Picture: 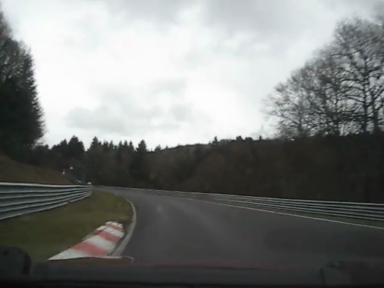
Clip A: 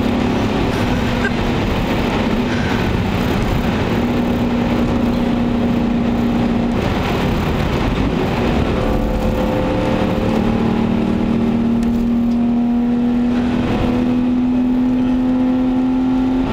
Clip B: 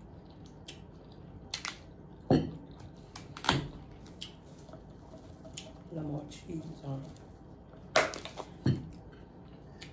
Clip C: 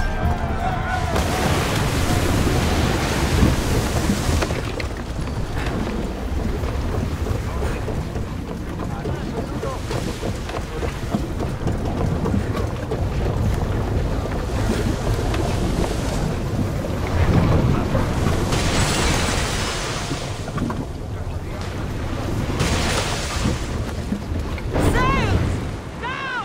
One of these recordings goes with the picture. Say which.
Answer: A